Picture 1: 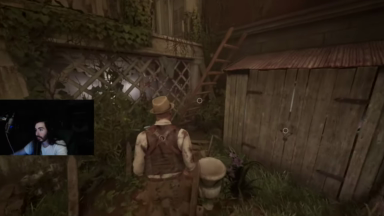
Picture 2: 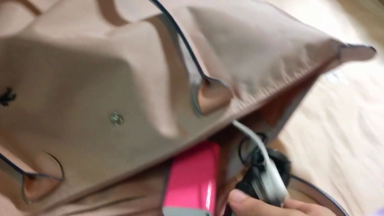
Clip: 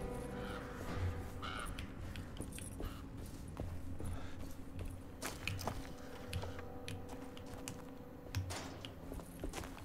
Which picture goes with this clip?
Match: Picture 1